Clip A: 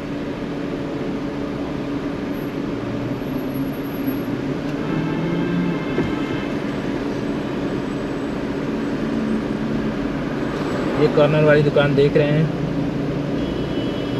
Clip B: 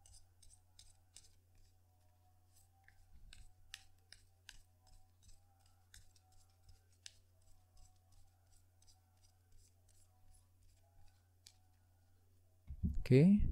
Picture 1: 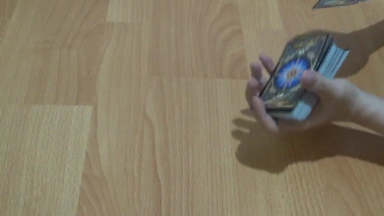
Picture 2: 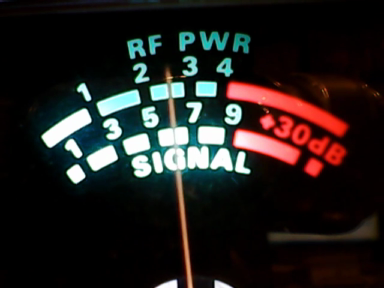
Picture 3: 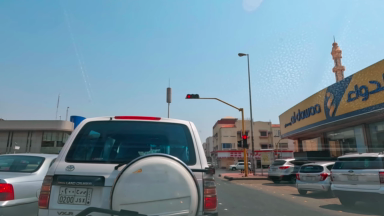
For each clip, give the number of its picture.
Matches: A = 3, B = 1